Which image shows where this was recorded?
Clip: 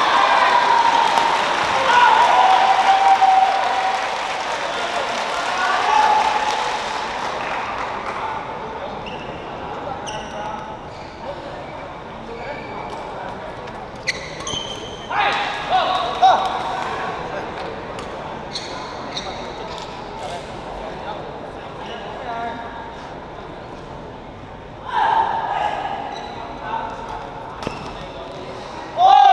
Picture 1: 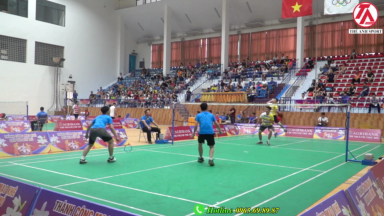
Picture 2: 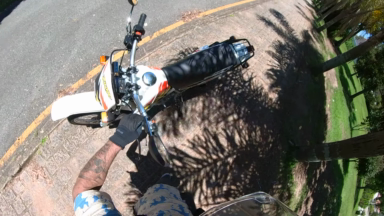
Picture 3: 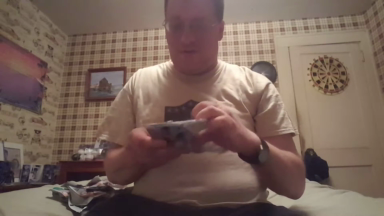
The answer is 1